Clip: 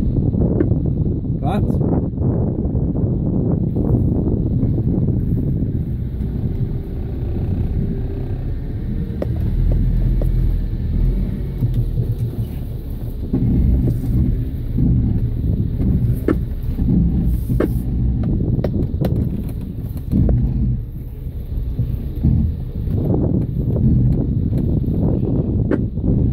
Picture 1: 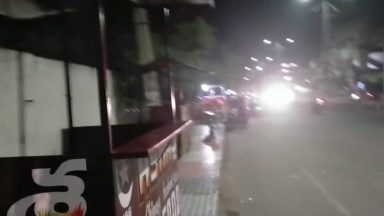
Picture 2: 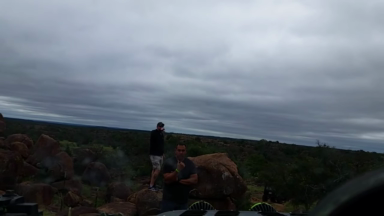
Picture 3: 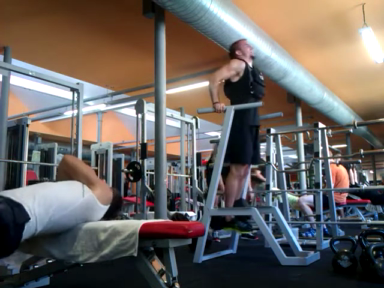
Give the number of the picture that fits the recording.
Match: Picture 2